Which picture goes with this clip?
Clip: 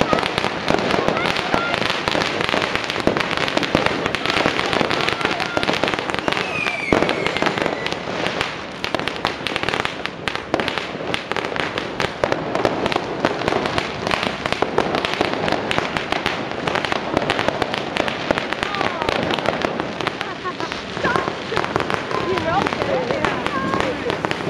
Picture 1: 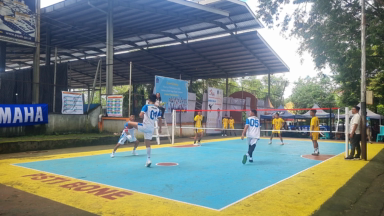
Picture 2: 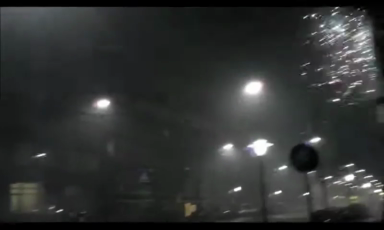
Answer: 2